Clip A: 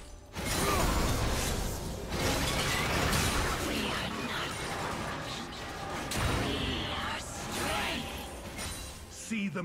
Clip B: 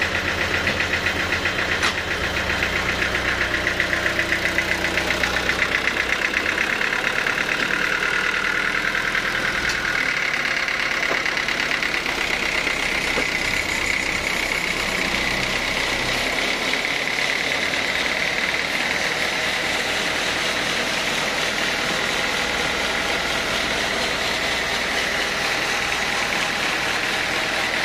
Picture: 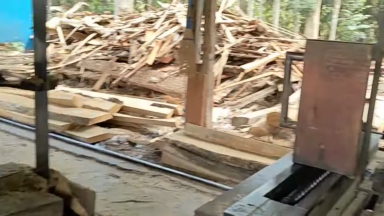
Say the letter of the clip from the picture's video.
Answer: B